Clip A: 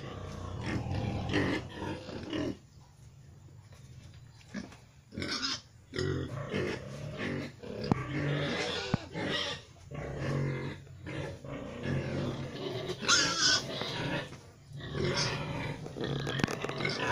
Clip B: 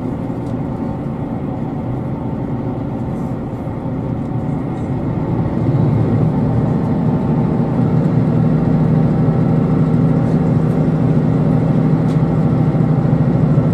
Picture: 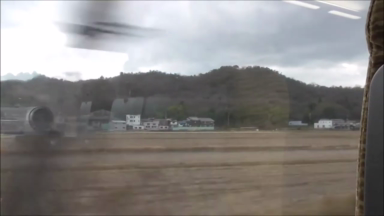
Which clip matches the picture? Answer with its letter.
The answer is B